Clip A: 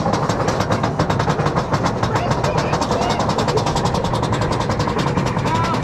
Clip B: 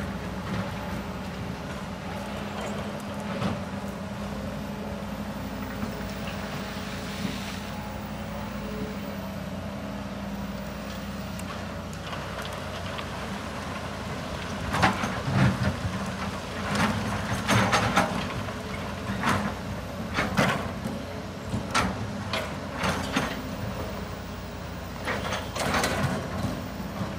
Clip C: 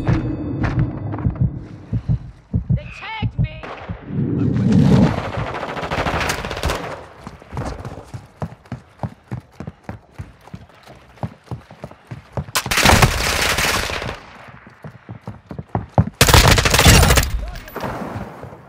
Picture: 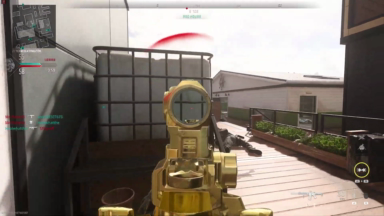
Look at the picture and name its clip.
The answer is C